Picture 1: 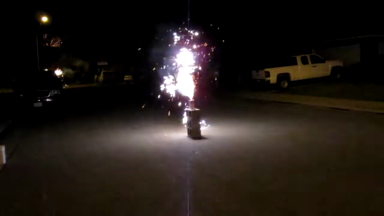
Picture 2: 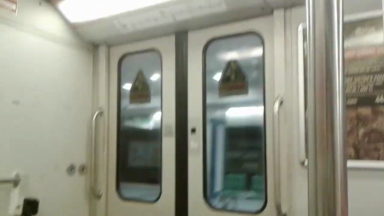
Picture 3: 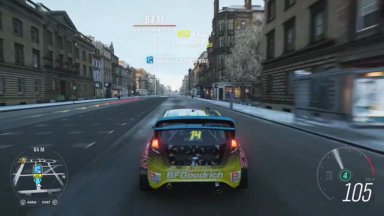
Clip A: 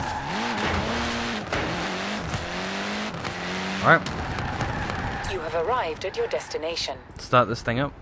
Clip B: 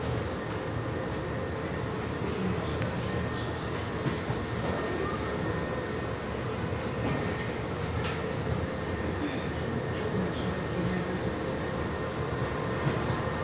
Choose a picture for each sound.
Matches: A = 3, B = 2